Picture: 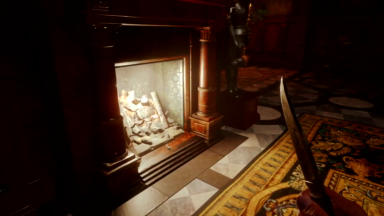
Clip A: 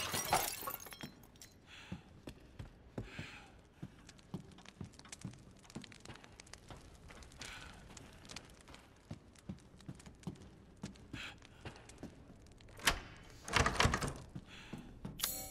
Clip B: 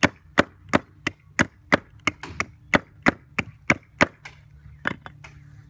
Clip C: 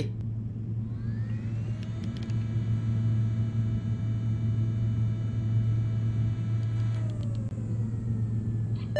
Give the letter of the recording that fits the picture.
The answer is A